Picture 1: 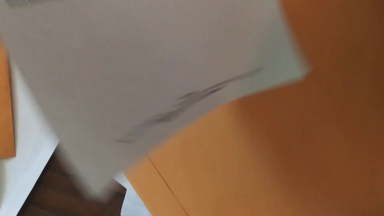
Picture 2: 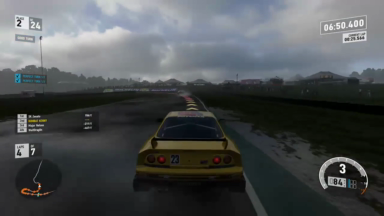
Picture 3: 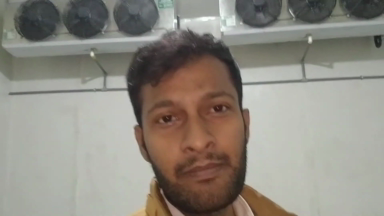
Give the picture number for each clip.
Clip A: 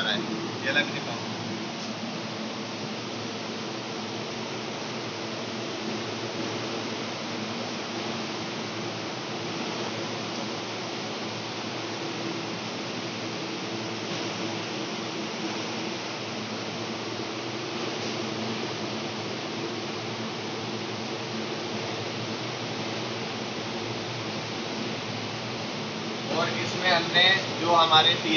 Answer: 3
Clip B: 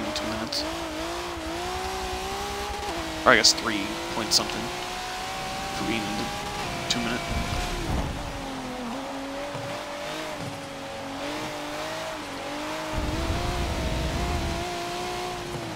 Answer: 2